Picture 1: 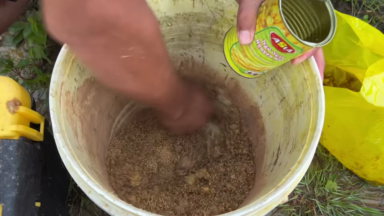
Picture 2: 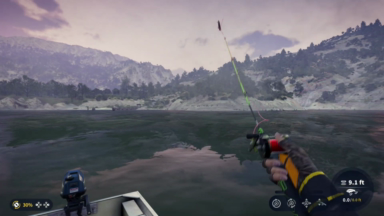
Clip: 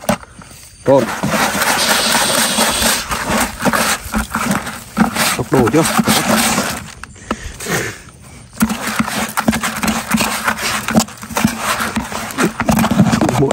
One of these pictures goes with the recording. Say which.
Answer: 1